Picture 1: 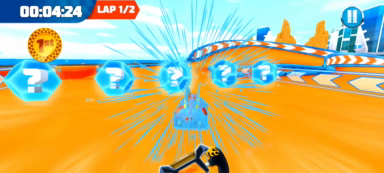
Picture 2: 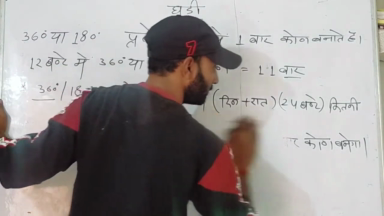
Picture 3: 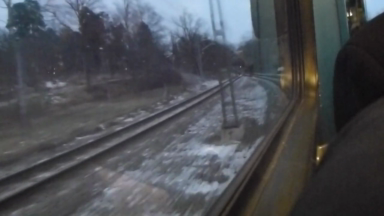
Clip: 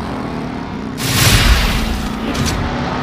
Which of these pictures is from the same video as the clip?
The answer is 1